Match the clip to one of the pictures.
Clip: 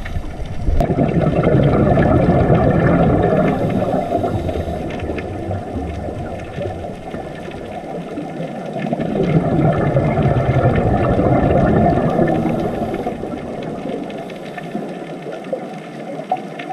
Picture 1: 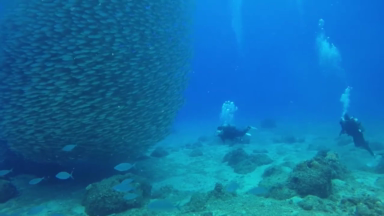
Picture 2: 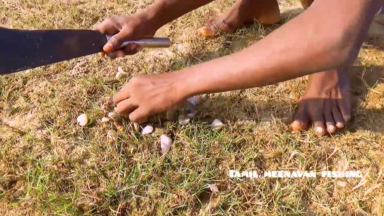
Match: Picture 1